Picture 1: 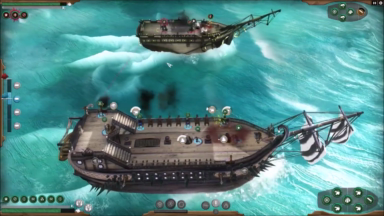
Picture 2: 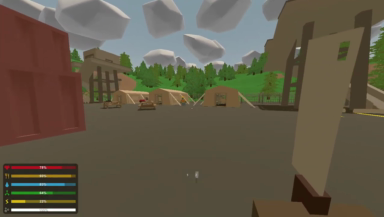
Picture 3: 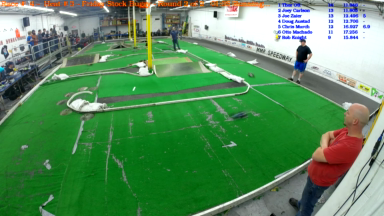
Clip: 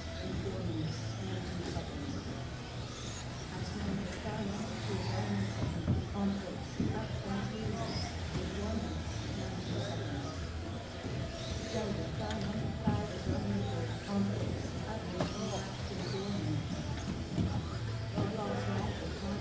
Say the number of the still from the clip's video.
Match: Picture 3